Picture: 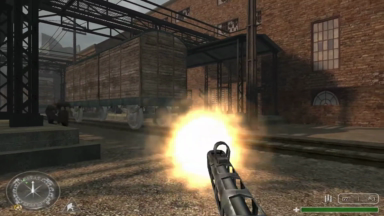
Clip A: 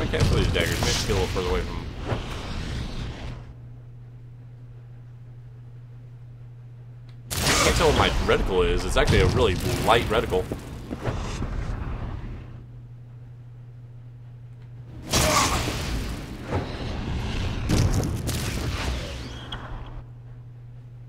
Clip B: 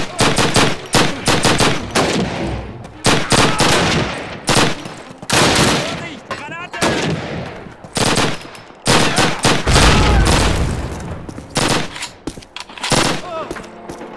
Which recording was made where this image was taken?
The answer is B